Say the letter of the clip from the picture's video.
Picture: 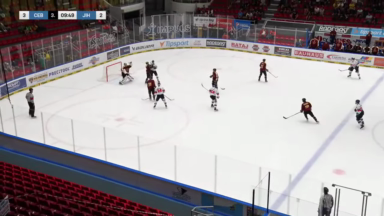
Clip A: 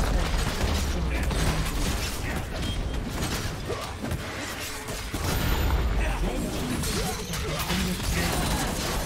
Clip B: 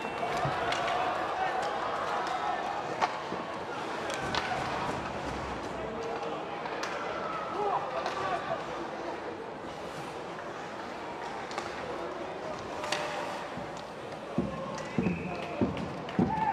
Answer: B